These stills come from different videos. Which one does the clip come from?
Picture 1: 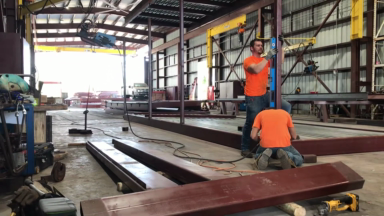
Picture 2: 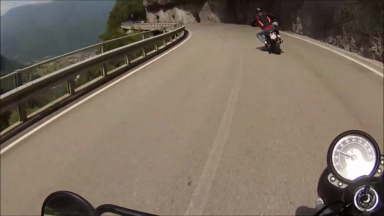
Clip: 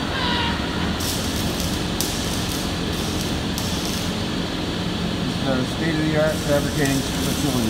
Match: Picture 1